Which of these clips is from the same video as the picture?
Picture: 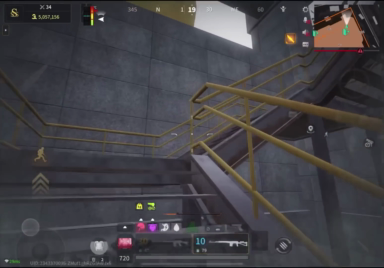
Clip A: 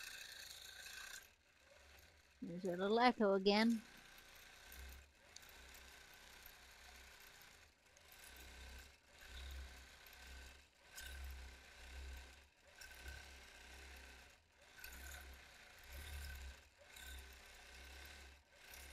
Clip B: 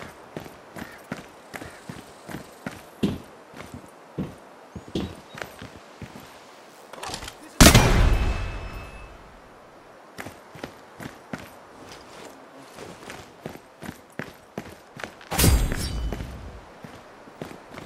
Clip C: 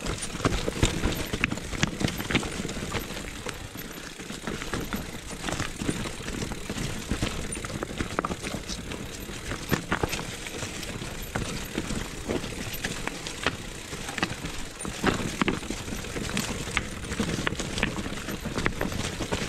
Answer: B